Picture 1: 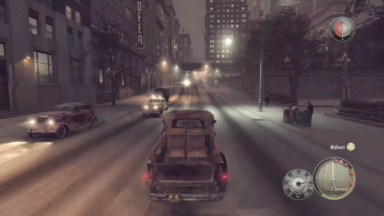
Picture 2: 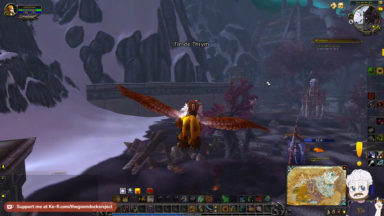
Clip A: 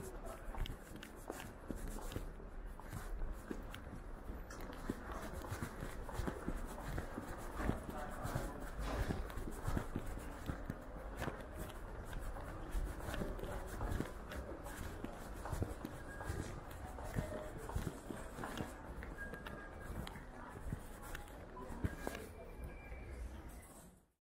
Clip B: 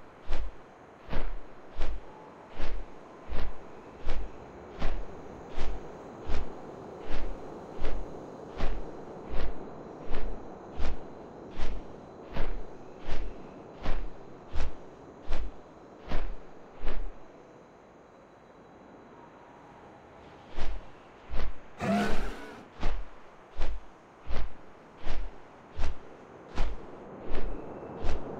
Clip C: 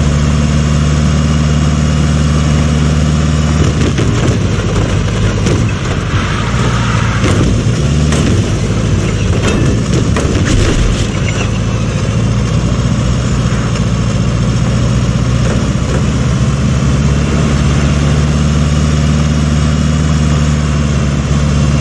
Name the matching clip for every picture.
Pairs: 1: C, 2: B